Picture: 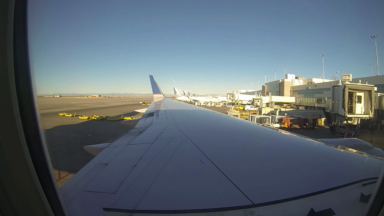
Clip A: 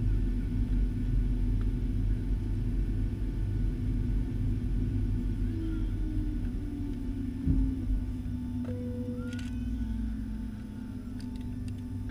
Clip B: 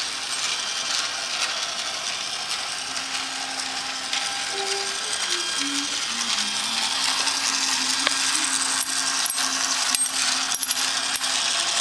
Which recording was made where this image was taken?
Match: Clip A